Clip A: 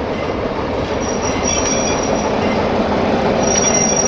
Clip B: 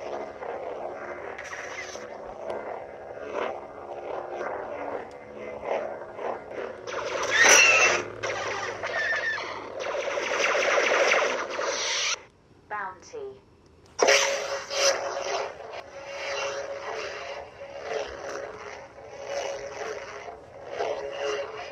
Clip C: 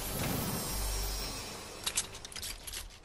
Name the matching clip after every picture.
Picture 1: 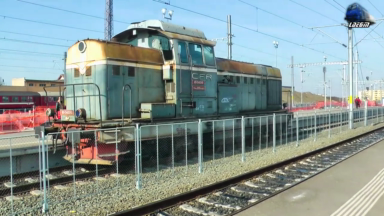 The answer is A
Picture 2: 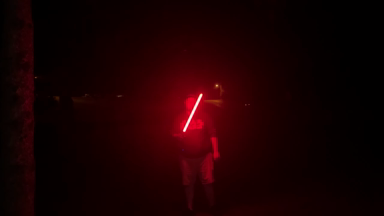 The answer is B